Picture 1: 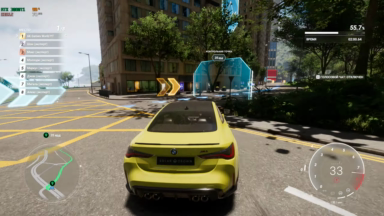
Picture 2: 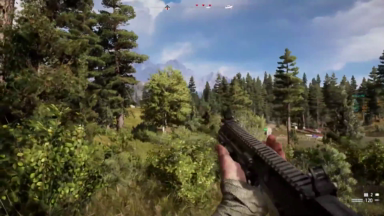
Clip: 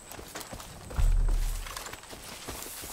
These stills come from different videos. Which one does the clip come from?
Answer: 2